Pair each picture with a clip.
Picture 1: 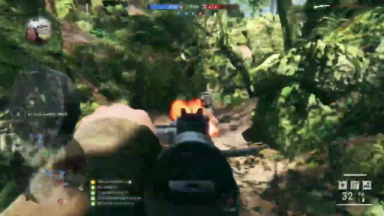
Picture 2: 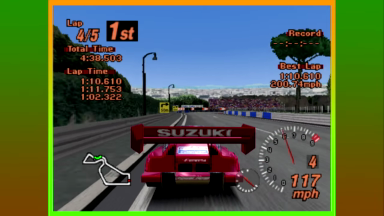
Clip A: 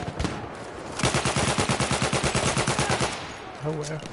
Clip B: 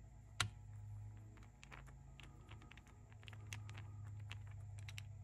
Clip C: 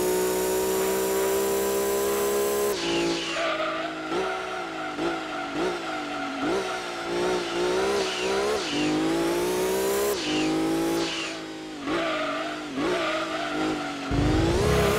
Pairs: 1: A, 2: C